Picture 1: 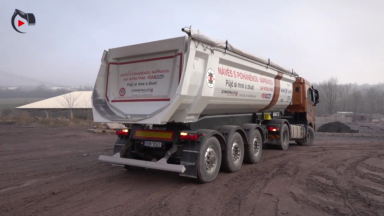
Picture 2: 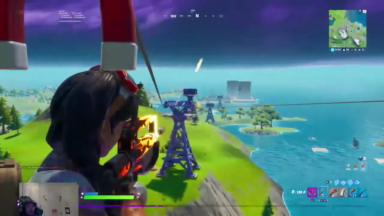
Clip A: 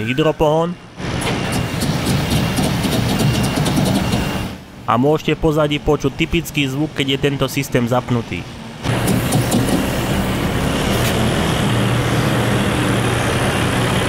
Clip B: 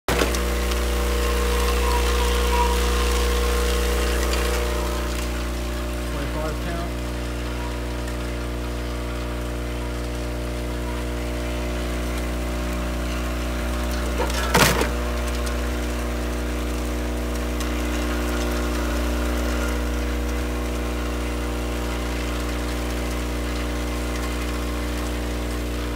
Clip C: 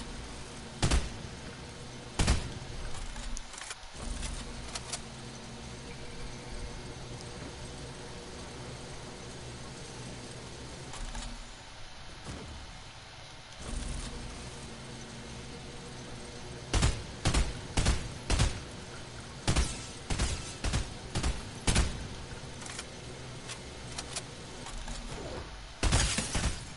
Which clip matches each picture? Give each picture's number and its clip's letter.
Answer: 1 A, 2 C